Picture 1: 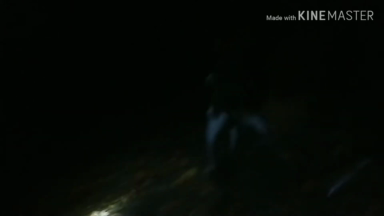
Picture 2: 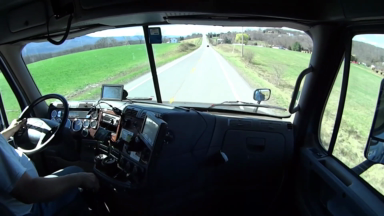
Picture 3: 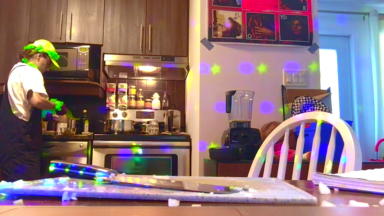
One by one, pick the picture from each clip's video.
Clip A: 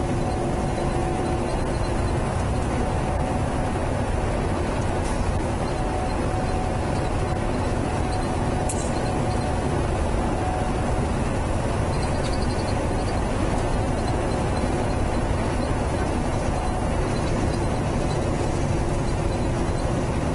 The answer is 2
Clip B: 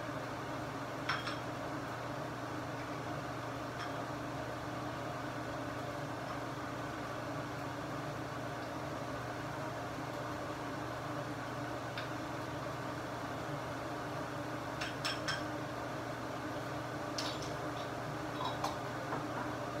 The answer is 3